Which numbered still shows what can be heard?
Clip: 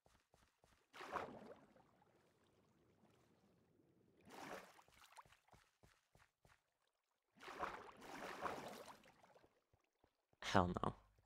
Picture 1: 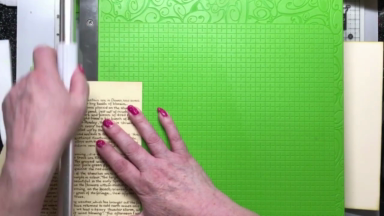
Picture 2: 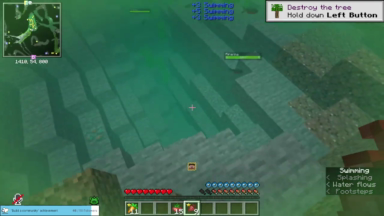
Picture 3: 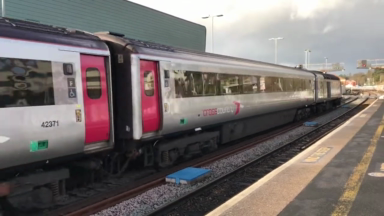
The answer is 2